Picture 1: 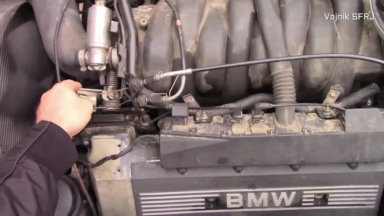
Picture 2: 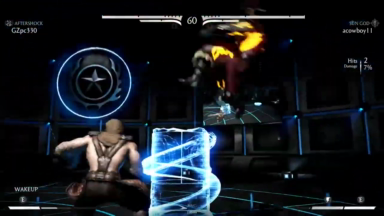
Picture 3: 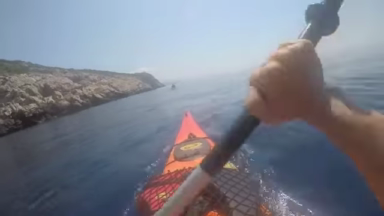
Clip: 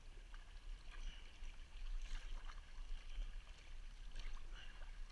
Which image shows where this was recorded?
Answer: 3